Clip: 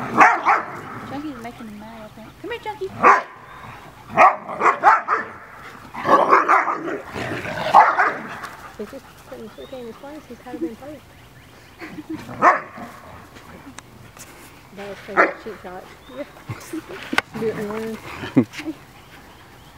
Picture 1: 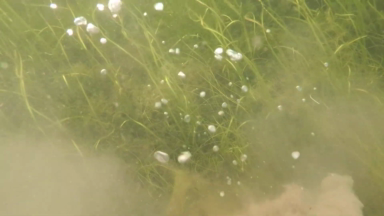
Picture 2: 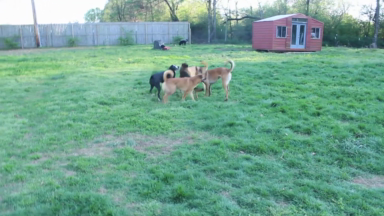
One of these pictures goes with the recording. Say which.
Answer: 2